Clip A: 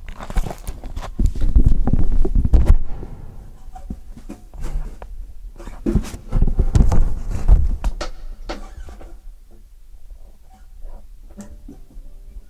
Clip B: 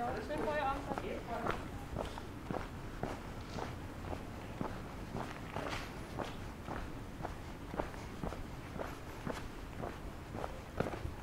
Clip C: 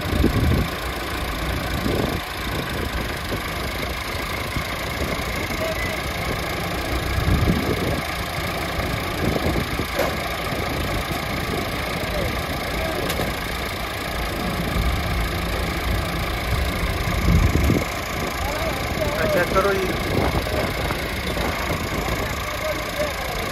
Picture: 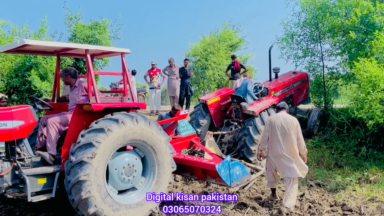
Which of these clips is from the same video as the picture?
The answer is C